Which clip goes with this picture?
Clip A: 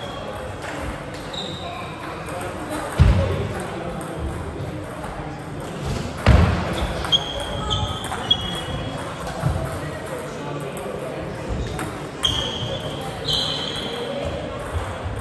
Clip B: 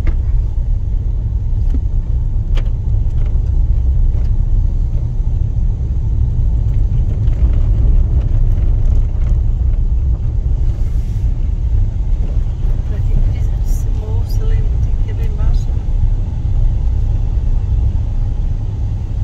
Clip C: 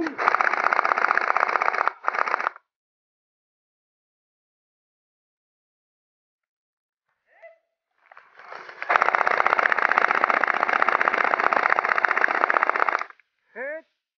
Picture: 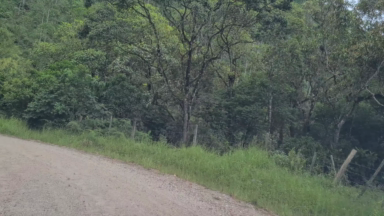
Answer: B